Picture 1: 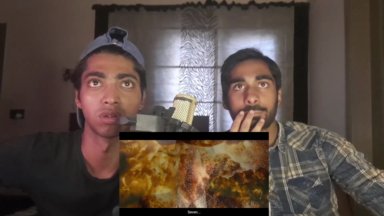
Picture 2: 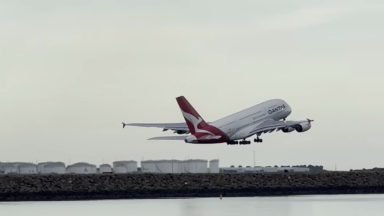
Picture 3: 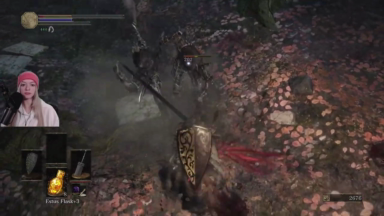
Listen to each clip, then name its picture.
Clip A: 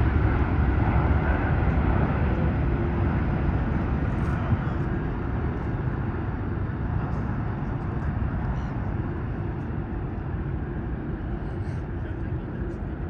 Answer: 2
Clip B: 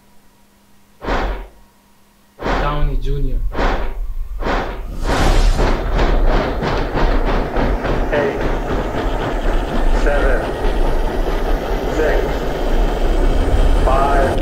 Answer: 1